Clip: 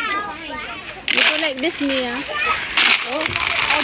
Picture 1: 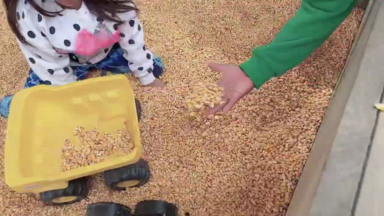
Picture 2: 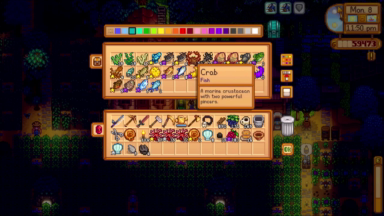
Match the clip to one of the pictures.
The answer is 1